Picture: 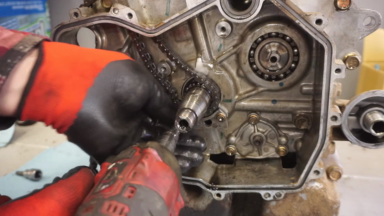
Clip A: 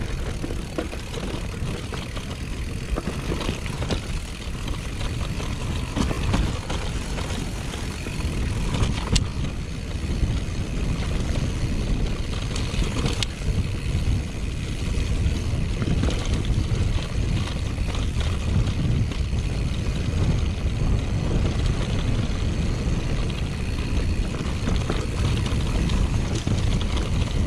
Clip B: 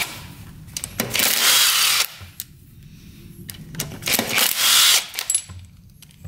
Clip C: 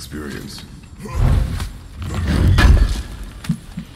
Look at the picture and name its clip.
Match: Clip B